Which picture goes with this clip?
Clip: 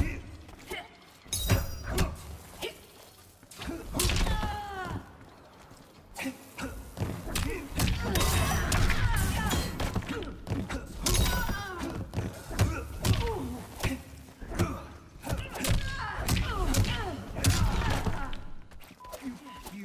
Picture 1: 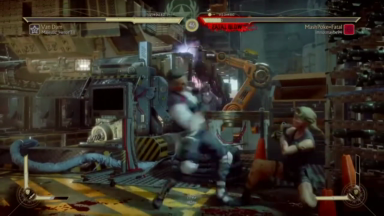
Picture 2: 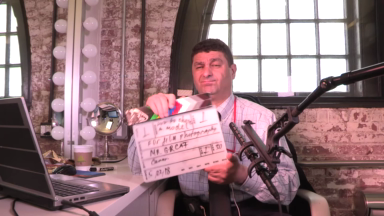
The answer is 1